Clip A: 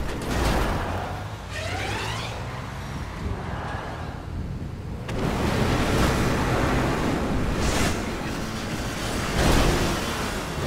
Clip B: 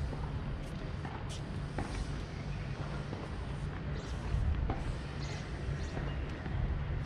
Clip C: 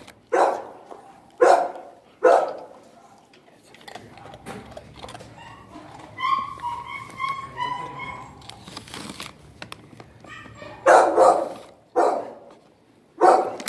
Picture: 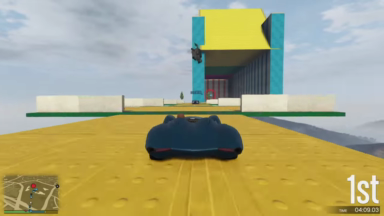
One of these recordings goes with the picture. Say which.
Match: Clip A